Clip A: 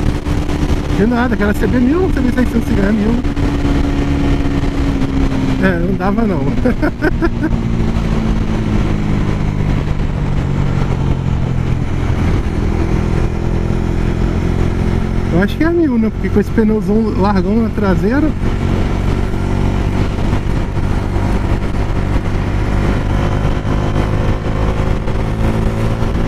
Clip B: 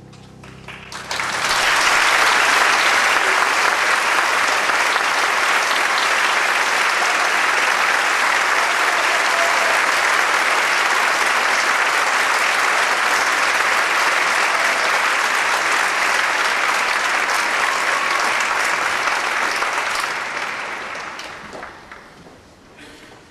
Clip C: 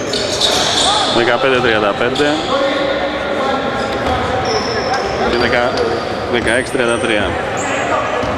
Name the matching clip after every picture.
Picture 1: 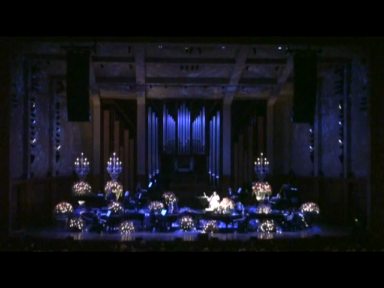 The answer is B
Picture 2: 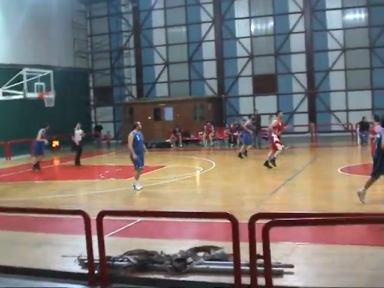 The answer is C